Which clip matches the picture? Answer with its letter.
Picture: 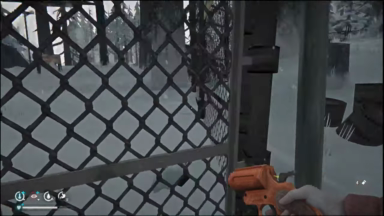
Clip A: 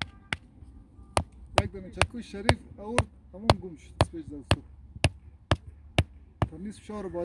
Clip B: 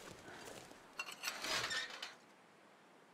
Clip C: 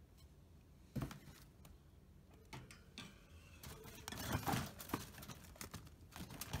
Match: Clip B